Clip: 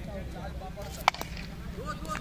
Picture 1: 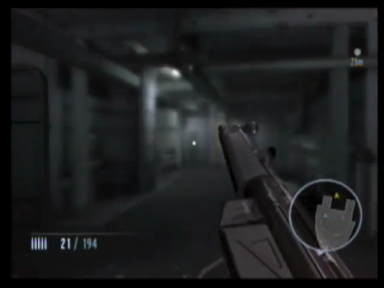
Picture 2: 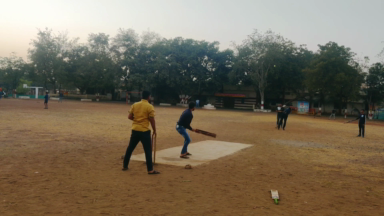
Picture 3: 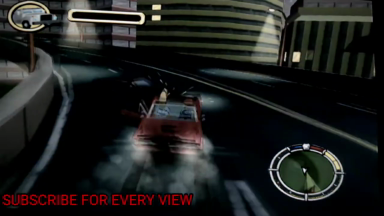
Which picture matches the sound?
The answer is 2